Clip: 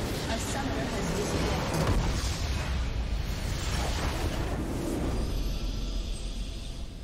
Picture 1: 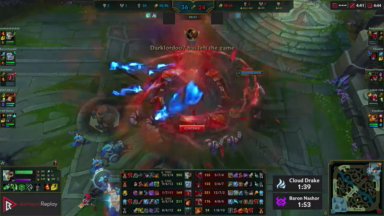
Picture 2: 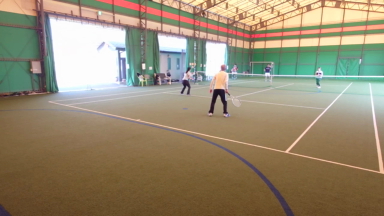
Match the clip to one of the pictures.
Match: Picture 1